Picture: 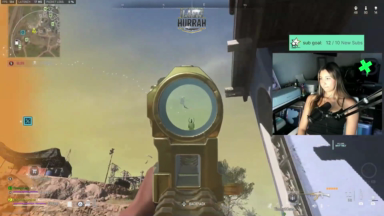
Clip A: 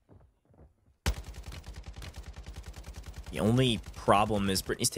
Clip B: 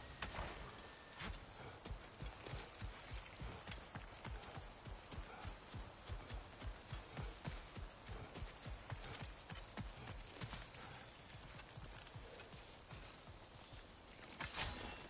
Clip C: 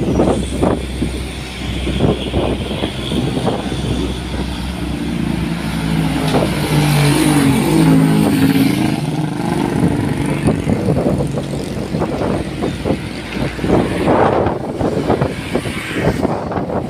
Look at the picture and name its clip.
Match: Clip A